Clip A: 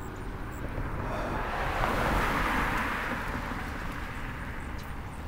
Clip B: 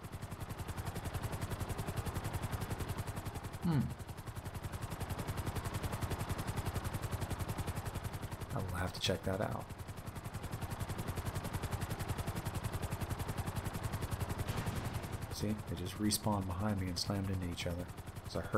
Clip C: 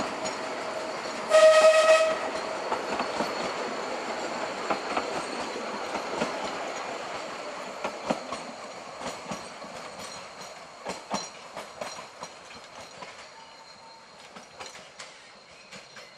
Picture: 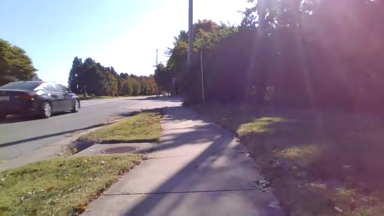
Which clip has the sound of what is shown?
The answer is A